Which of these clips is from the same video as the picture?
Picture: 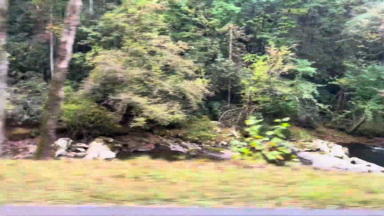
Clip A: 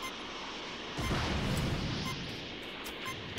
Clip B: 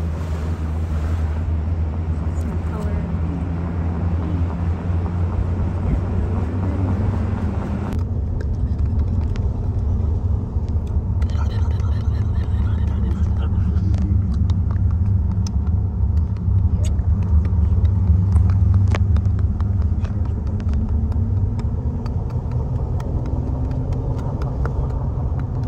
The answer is B